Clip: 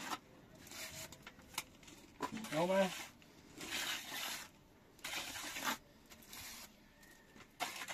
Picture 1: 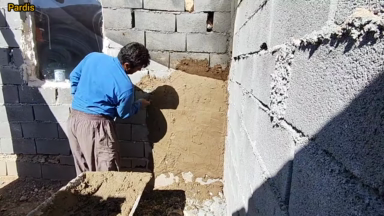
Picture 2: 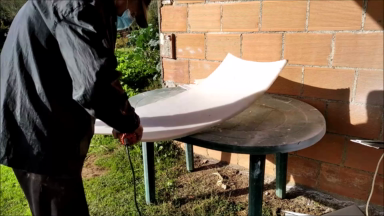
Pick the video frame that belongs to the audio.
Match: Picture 1